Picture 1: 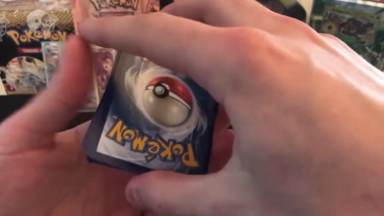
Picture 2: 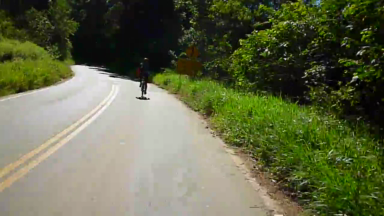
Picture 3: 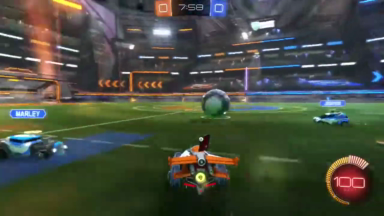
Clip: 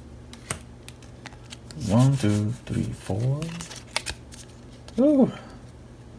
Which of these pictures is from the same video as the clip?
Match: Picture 1